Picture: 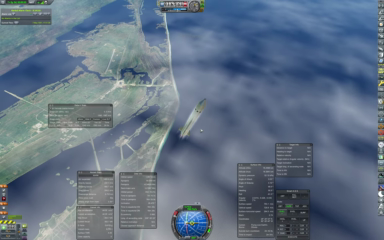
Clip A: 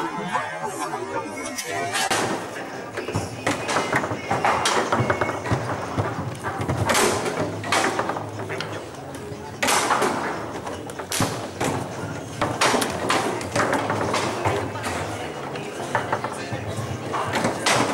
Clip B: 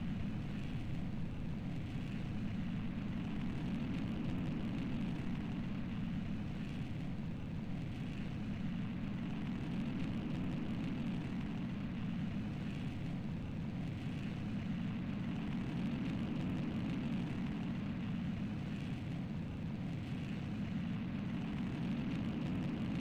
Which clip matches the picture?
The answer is B